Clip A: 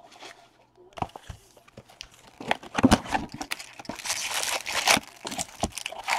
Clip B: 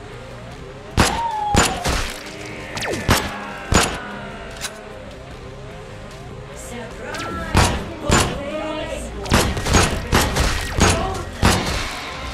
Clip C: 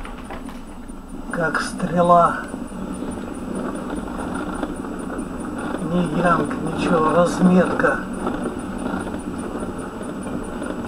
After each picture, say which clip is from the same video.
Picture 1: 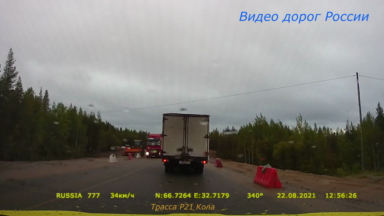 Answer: C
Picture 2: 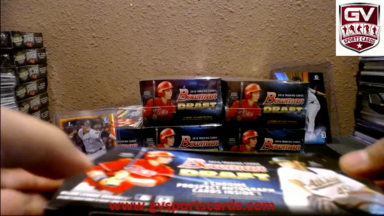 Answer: A